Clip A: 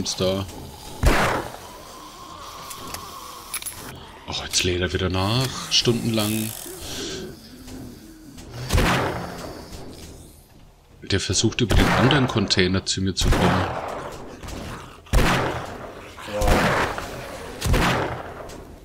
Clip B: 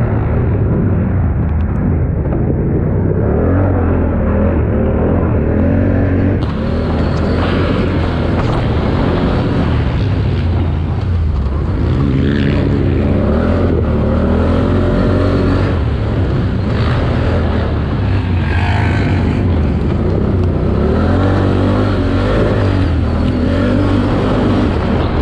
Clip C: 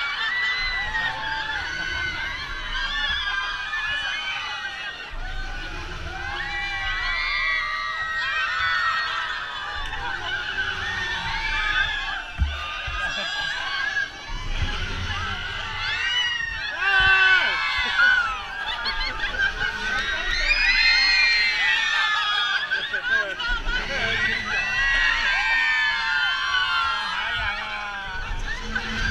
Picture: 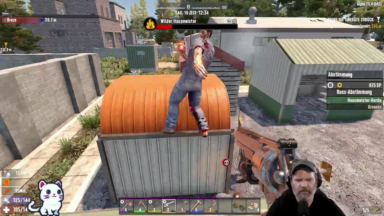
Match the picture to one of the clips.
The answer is A